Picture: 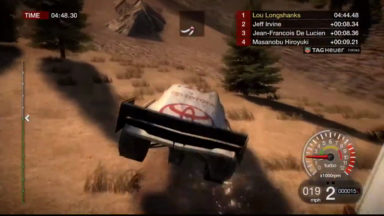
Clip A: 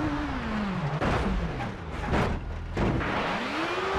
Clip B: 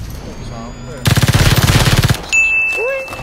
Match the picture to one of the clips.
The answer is A